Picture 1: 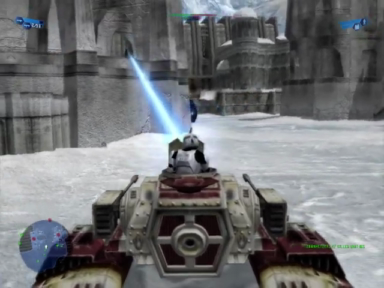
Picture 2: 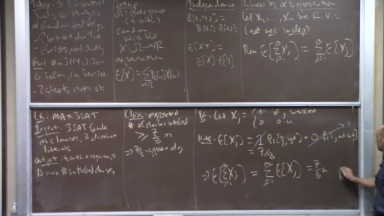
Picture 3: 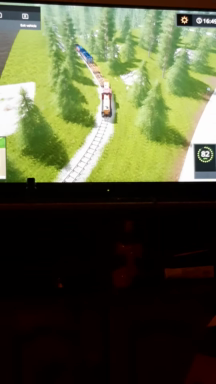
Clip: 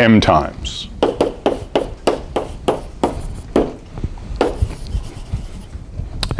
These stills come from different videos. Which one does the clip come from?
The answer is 2